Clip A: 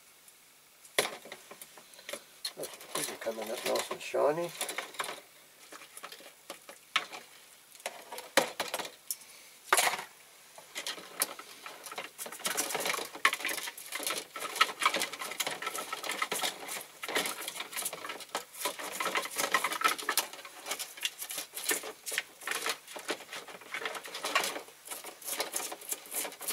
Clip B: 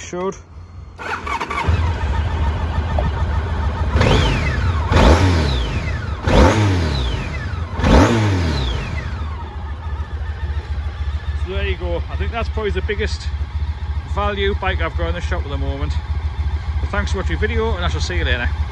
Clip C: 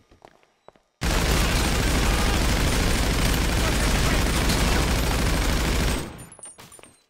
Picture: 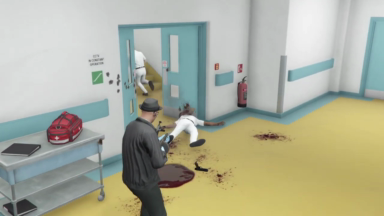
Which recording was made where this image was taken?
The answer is C